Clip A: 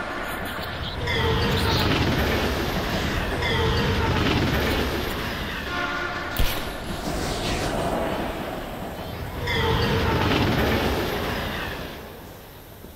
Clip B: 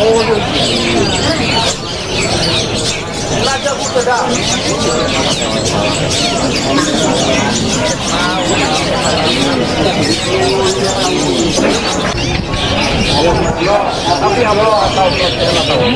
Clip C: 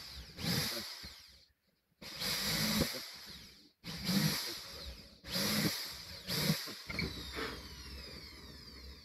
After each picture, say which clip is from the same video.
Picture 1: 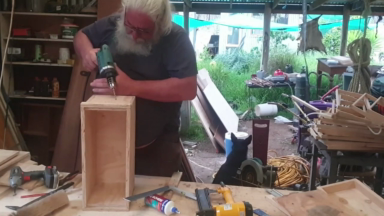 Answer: C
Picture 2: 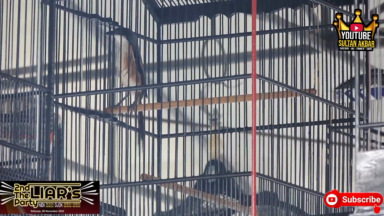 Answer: B